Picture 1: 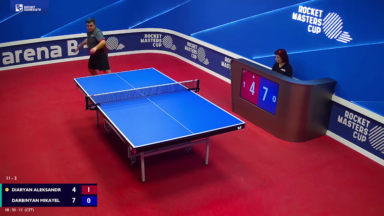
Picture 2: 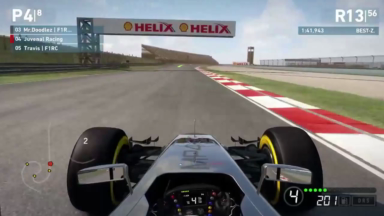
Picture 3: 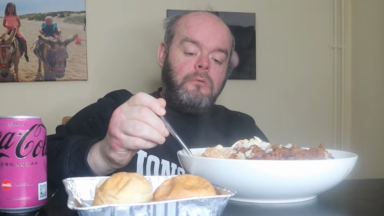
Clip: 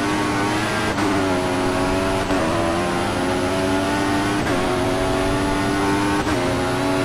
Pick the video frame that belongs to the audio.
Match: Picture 2